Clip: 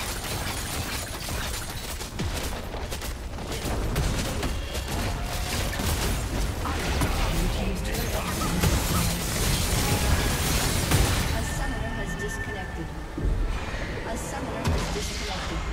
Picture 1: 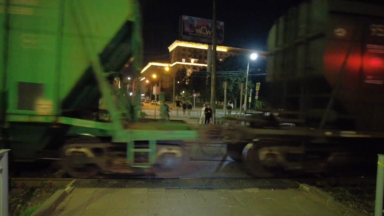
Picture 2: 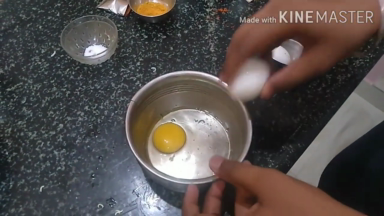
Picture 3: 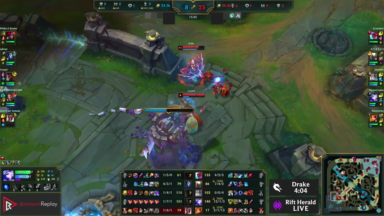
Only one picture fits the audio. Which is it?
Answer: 3